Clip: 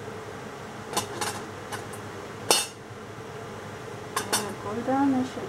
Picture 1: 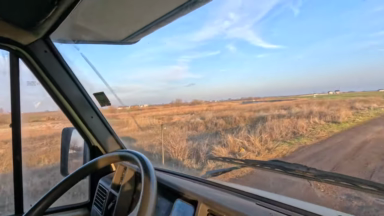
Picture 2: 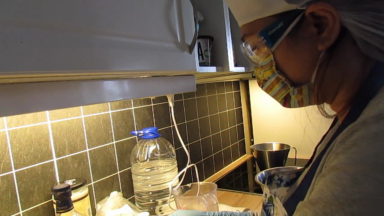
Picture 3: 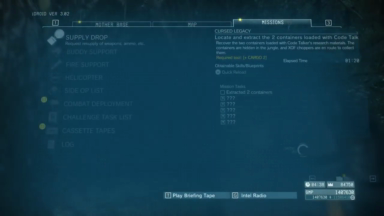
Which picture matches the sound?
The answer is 2